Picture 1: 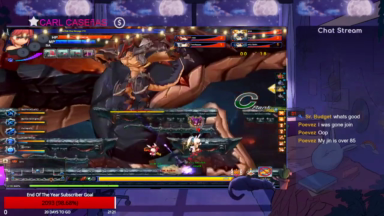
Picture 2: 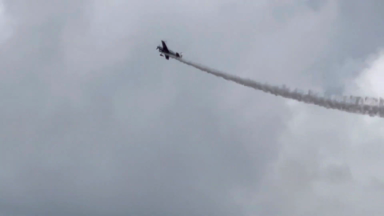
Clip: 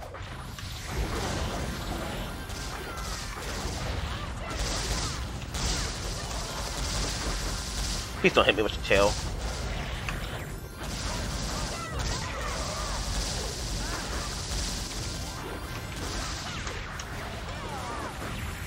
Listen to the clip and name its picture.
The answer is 1